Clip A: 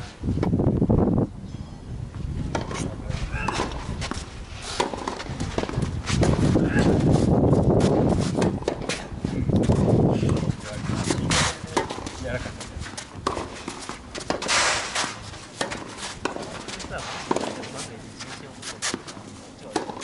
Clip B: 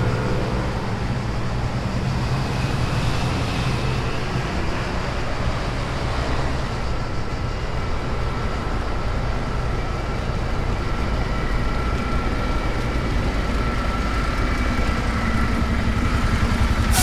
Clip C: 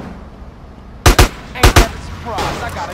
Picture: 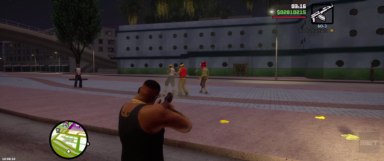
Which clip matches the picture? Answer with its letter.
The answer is C